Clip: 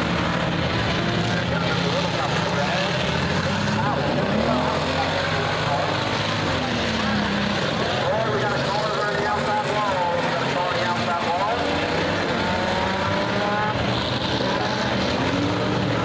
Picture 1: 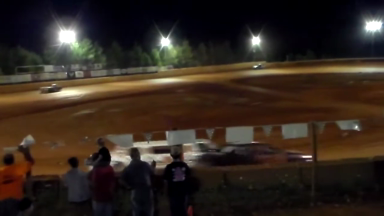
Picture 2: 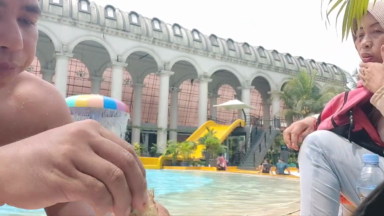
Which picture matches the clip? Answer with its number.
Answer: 1